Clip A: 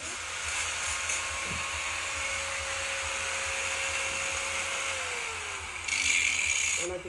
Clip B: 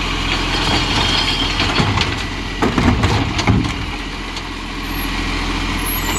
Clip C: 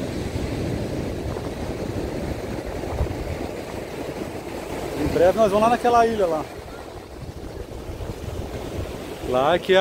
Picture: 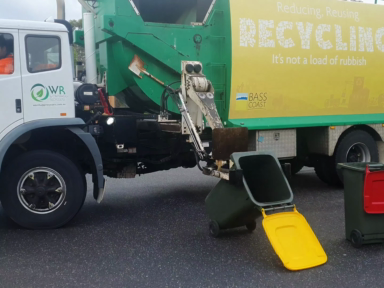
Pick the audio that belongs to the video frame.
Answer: B